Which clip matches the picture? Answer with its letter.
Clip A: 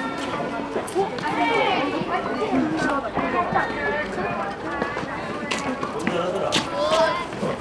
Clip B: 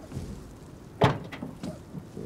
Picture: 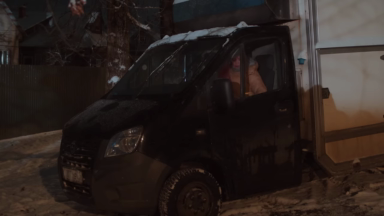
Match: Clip B